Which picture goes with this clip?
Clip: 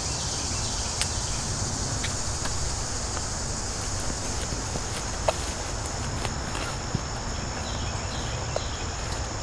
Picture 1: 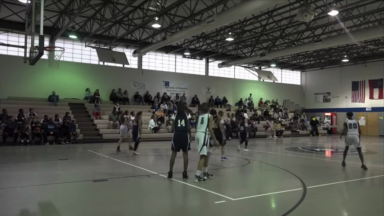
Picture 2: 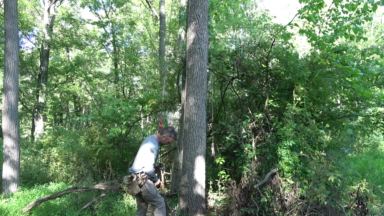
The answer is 2